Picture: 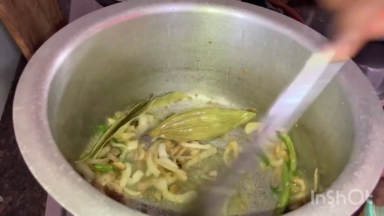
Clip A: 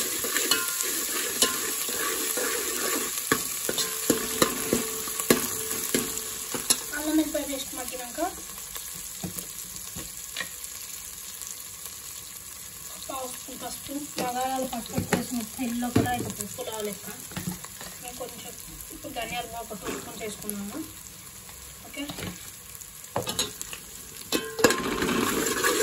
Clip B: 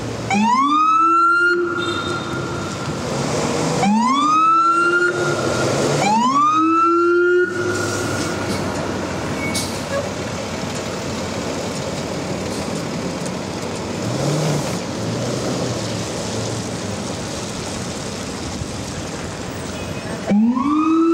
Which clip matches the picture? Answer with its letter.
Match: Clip A